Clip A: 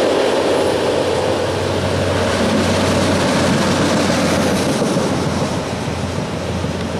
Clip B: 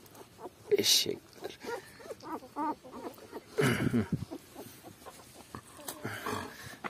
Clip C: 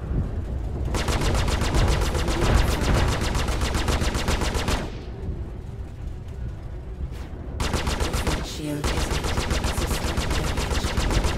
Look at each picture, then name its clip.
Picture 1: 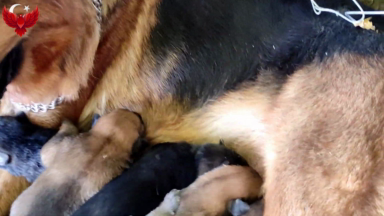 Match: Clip B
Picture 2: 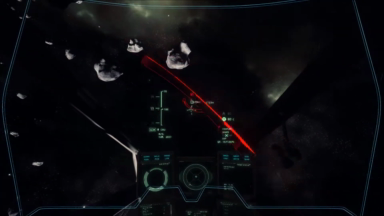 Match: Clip C